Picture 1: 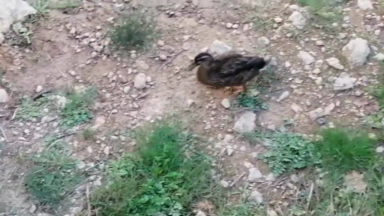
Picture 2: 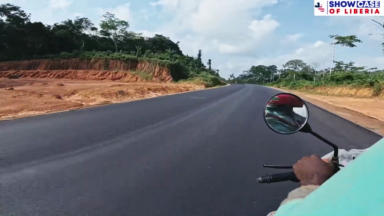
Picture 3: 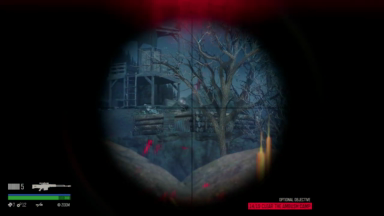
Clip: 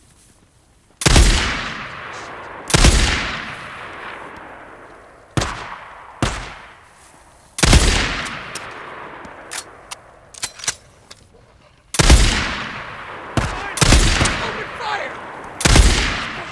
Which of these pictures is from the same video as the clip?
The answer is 3